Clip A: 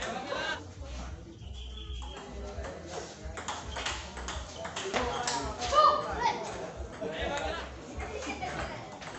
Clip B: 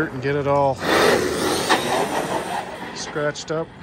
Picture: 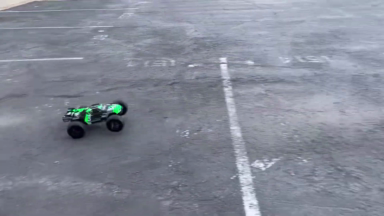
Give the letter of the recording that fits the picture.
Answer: B